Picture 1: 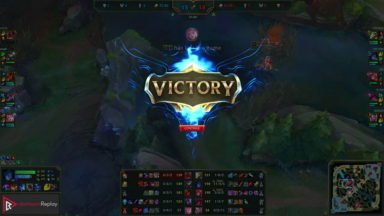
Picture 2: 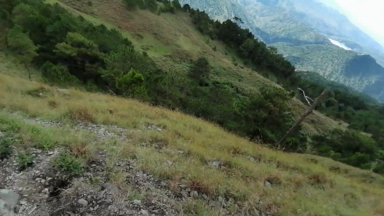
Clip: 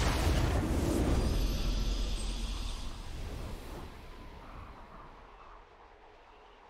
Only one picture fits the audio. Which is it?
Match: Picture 1